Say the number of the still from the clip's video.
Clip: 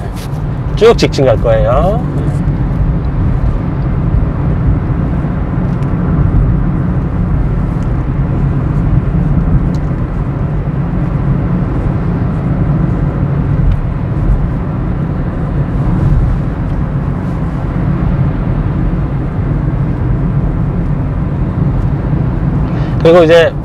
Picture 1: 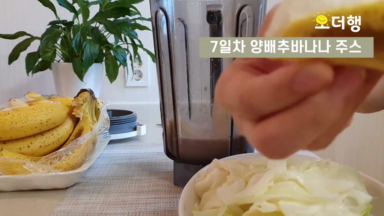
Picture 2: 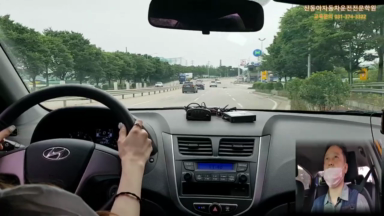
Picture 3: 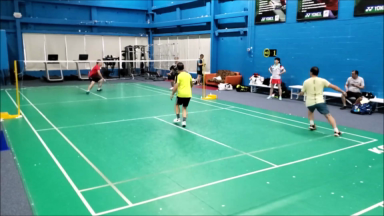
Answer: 2